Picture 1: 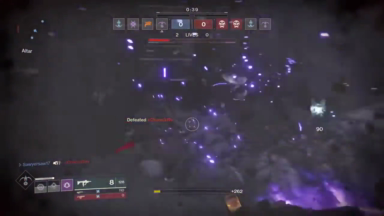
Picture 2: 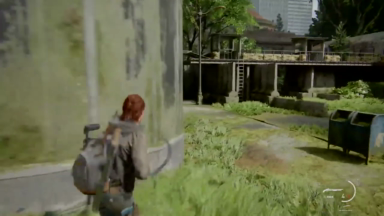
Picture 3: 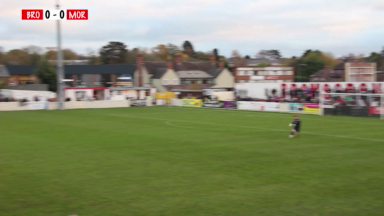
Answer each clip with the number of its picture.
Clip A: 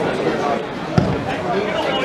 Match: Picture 3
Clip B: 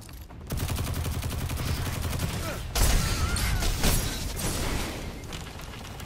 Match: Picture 1